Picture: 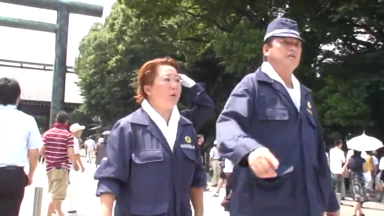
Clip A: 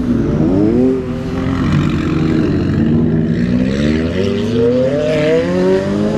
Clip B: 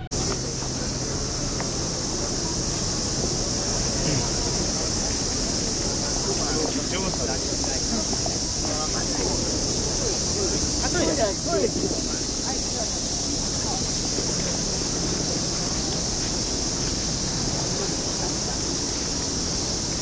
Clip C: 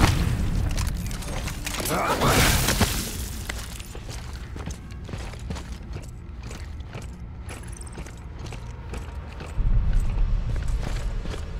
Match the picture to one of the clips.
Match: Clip B